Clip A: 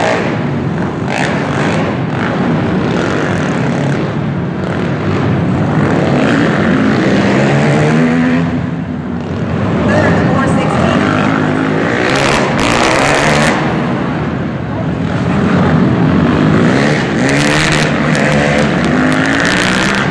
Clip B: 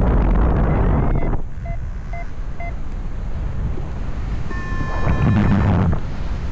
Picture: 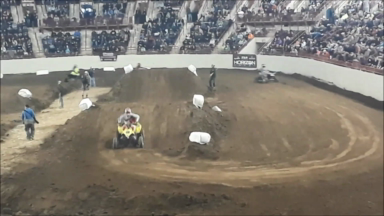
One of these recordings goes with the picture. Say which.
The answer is A